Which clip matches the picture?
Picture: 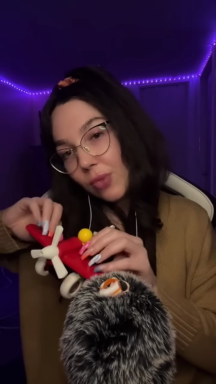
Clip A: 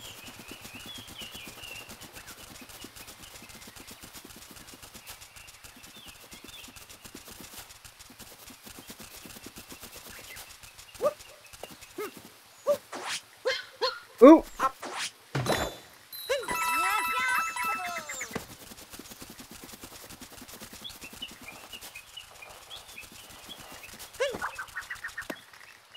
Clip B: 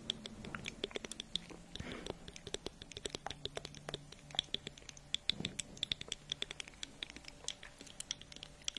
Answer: B